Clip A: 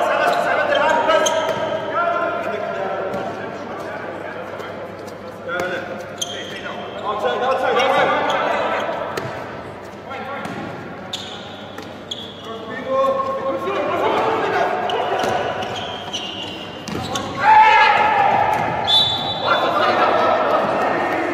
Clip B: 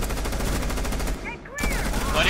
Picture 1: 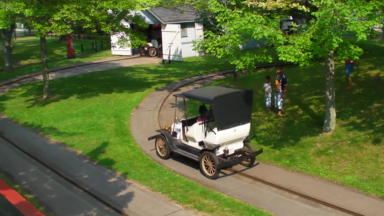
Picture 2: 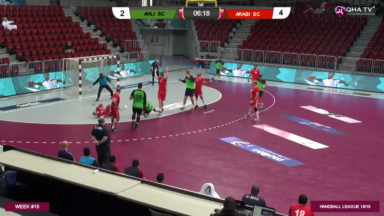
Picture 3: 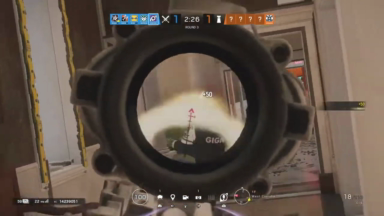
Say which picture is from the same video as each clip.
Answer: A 2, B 3